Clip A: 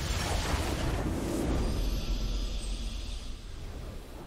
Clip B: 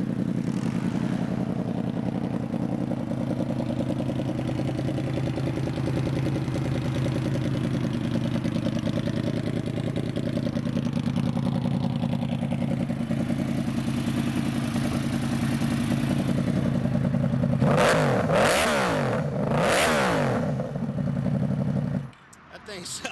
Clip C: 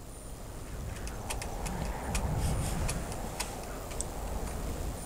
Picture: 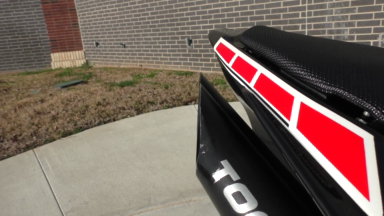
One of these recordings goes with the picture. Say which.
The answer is B